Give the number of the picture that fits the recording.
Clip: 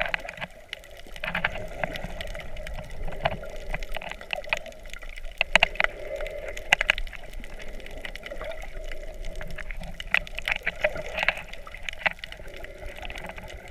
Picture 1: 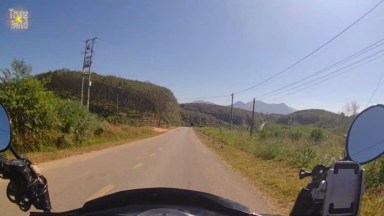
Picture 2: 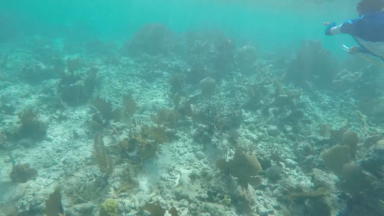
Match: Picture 2